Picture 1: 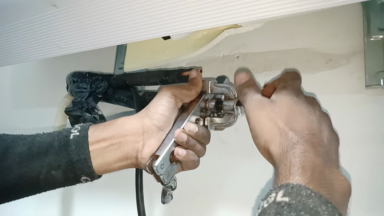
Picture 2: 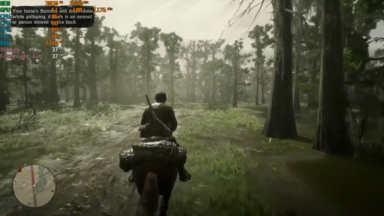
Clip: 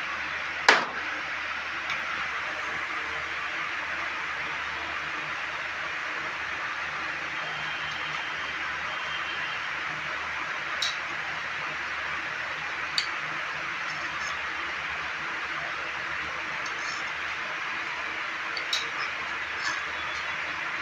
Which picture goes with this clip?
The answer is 1